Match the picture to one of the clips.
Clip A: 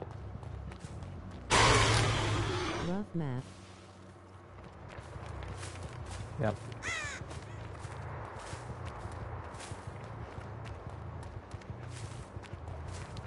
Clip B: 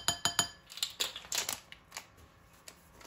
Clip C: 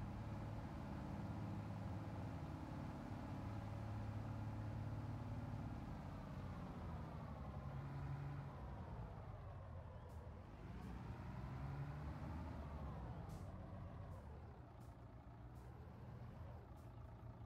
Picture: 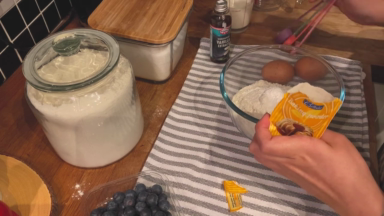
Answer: B